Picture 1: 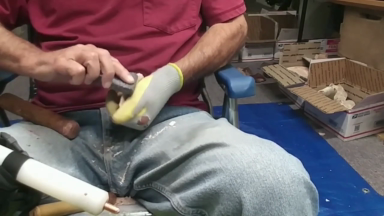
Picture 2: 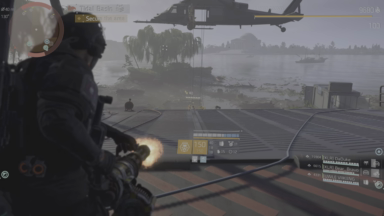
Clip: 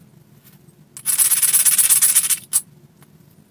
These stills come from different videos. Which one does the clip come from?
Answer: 1